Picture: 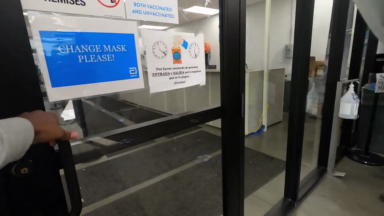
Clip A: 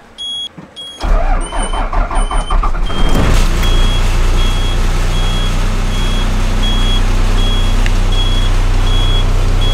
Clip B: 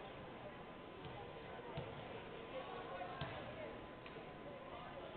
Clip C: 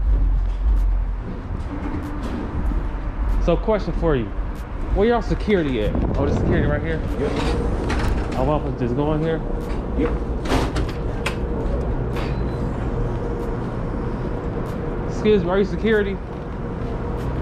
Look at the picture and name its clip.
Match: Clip C